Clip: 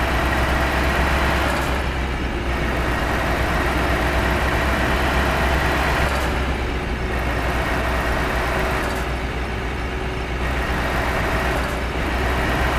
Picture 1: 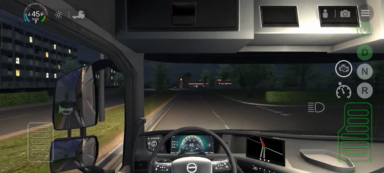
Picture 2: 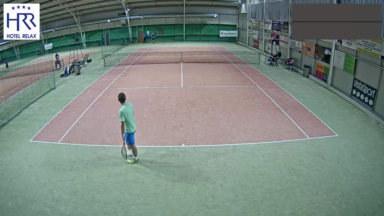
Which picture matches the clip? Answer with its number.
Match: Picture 1